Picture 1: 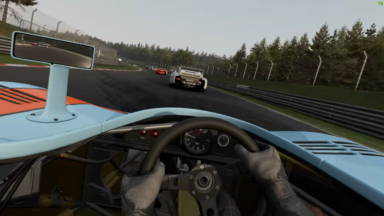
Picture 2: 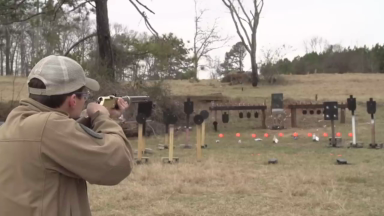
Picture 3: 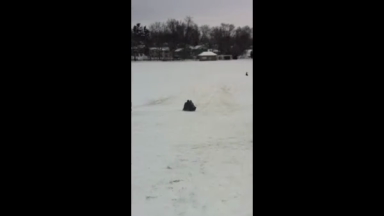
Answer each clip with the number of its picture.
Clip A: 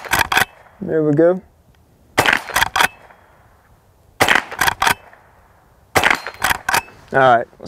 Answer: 2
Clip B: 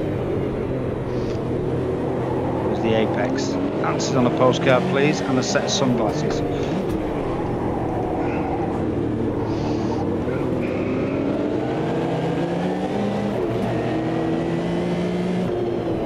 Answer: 1